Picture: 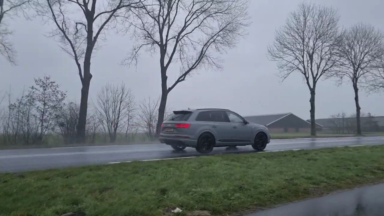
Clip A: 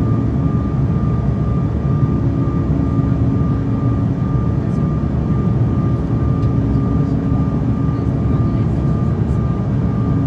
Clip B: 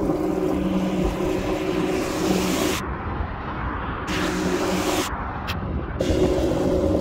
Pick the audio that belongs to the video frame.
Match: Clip B